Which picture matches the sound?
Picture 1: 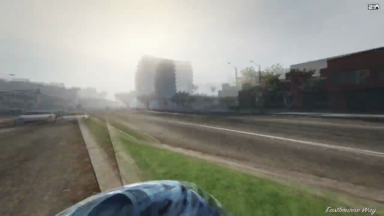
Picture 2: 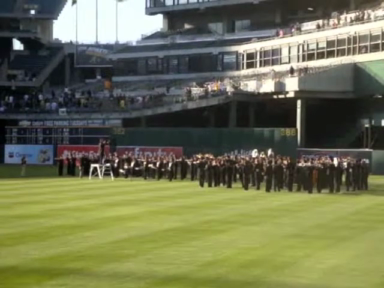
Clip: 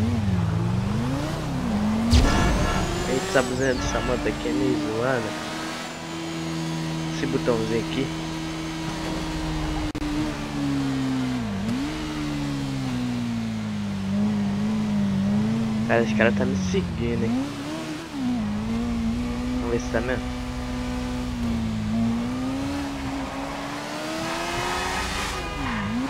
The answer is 1